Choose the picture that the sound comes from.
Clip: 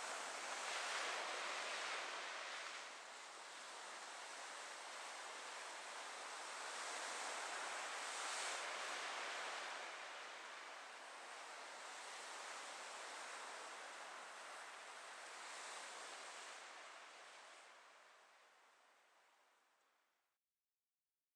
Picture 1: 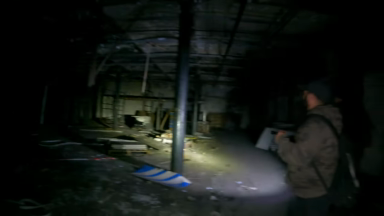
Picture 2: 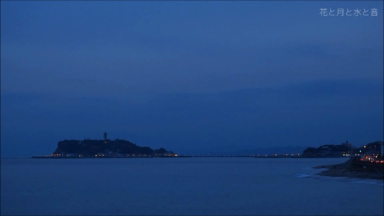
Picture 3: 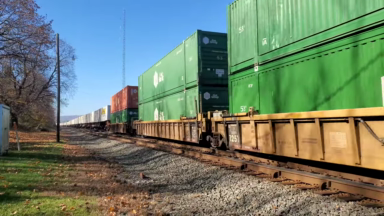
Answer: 2